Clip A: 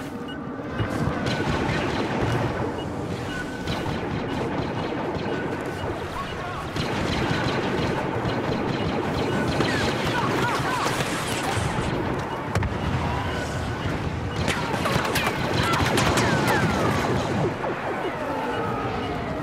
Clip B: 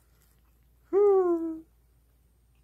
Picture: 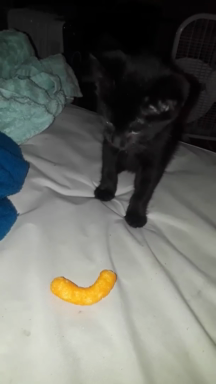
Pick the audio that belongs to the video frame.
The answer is B